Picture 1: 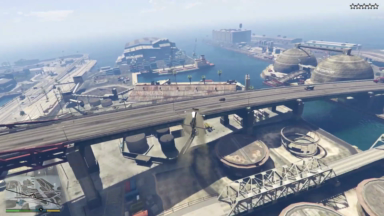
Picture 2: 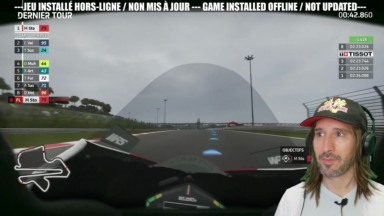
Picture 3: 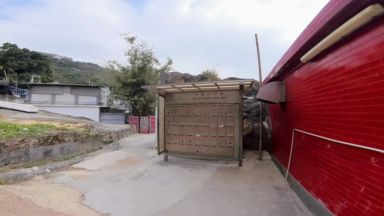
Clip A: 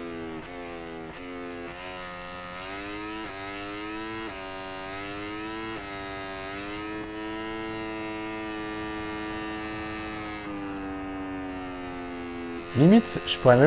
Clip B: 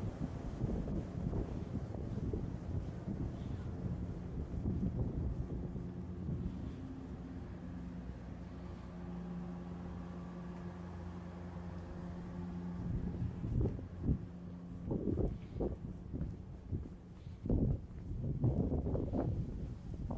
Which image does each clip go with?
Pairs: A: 2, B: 3